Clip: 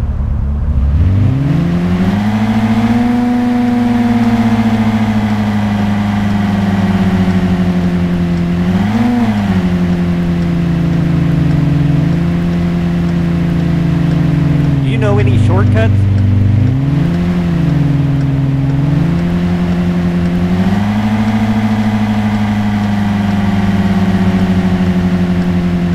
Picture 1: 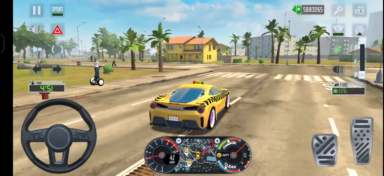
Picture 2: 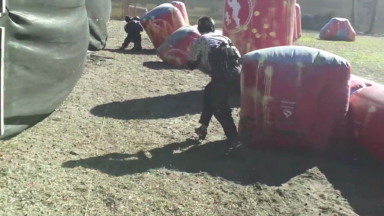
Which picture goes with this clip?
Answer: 1